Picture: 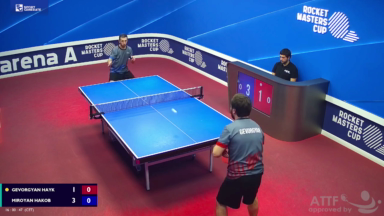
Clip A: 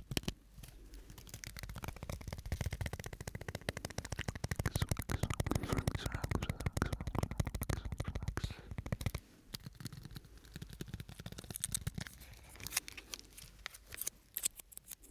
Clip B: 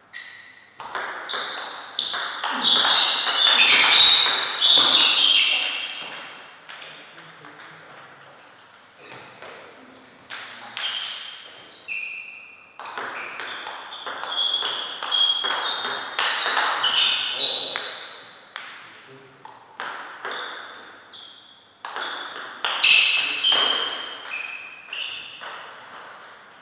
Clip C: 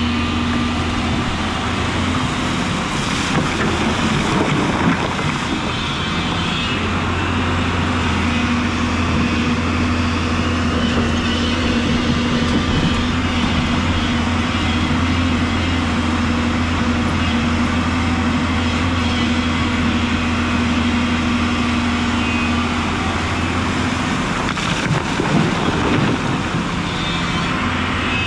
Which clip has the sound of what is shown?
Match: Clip B